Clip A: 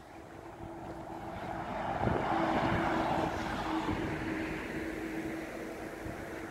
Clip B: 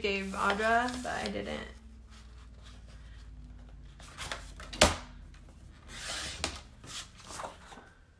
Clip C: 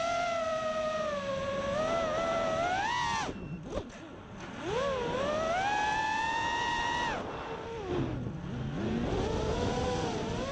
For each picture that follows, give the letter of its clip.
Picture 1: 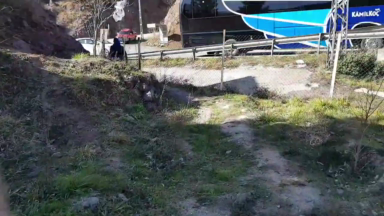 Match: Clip A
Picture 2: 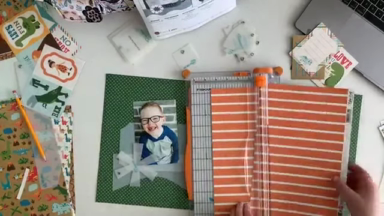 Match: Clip B